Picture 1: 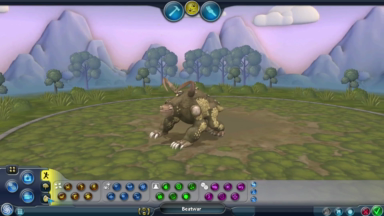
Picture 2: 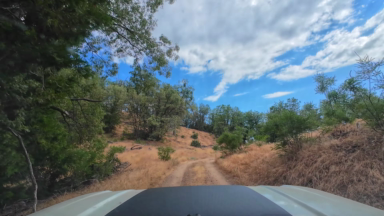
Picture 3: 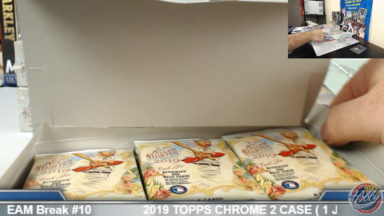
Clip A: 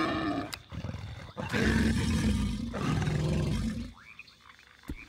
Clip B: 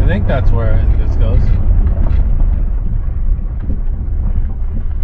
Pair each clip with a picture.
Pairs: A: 1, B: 2